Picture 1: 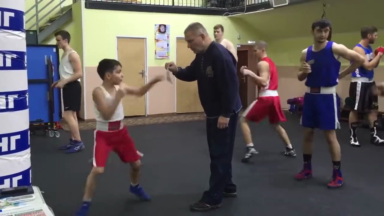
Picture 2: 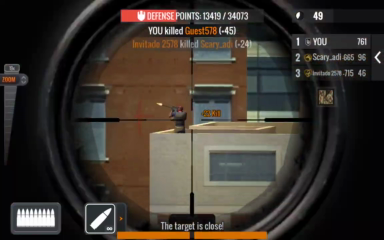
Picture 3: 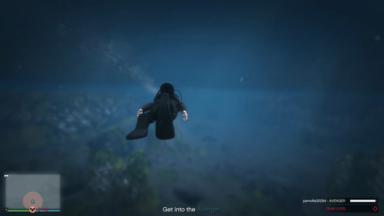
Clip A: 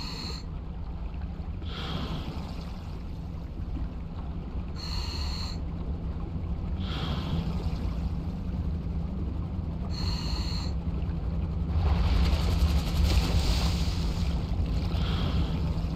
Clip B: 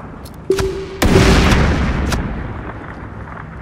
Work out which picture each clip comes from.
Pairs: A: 3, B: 2